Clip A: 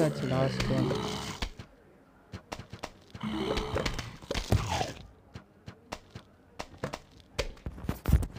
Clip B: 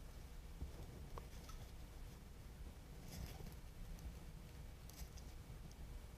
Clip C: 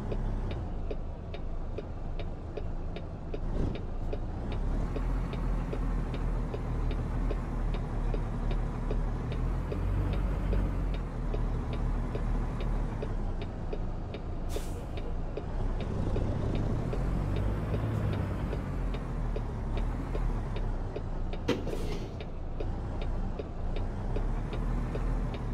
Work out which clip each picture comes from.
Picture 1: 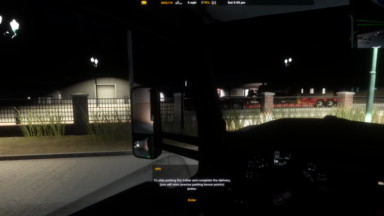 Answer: C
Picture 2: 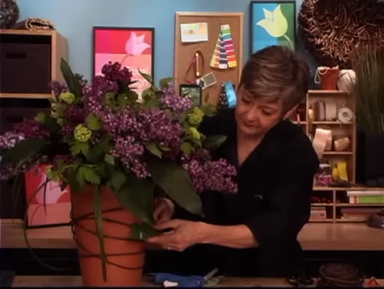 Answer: B